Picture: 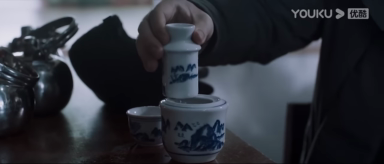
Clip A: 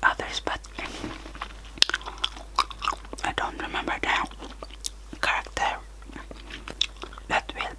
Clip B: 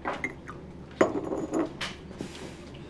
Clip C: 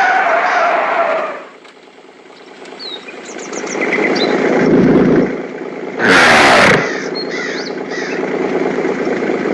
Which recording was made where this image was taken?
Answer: B